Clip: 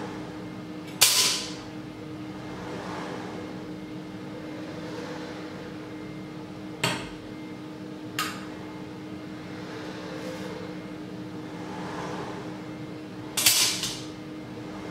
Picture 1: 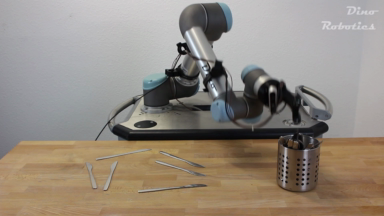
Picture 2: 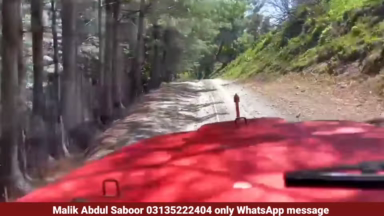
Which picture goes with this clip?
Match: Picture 1